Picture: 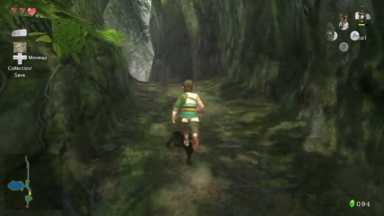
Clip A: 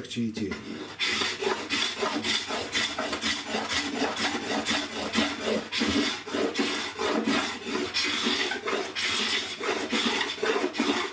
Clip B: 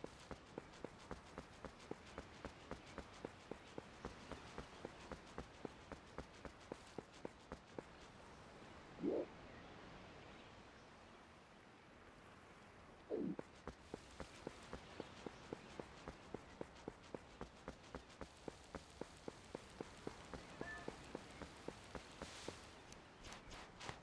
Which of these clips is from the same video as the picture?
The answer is B